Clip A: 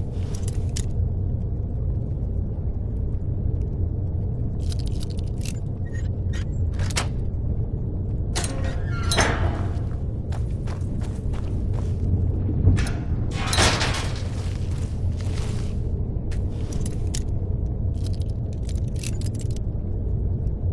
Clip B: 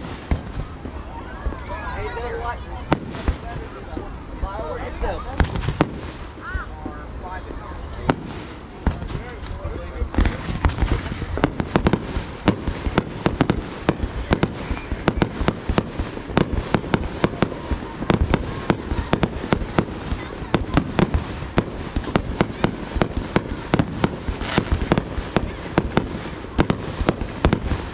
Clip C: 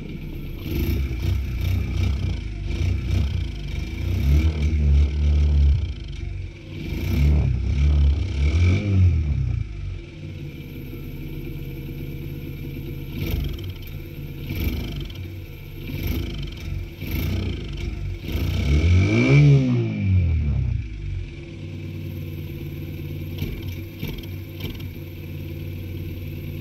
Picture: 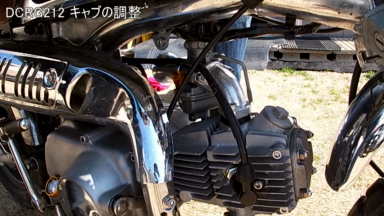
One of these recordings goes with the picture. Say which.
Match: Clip C